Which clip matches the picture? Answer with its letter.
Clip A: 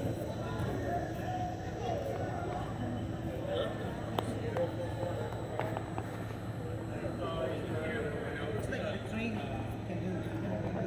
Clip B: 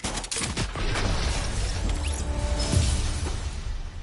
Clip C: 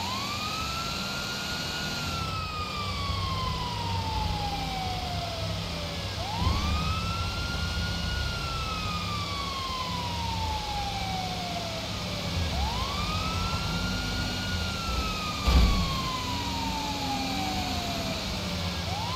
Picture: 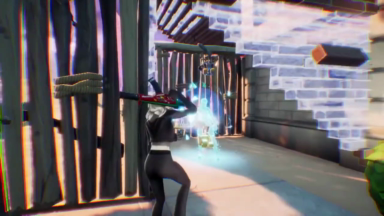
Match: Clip B